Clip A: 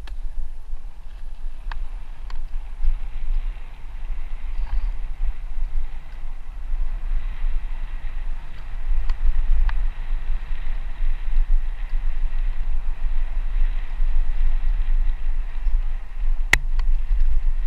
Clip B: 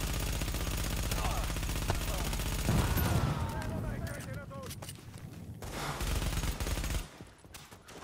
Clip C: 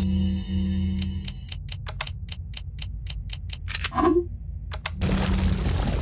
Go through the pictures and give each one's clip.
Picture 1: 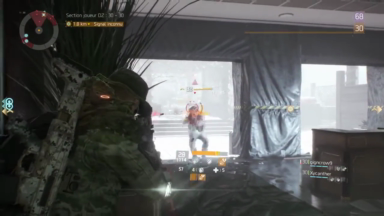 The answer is B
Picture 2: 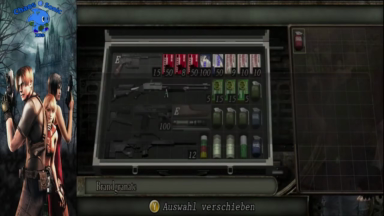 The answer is C